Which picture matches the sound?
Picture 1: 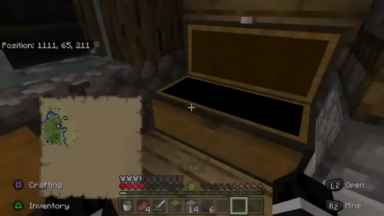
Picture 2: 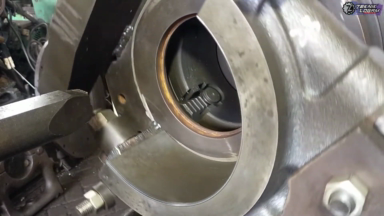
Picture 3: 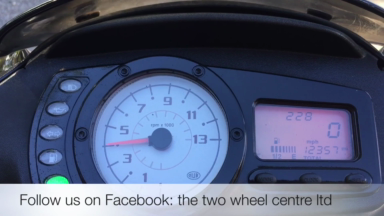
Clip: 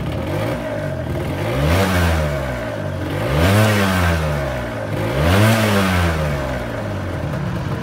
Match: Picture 3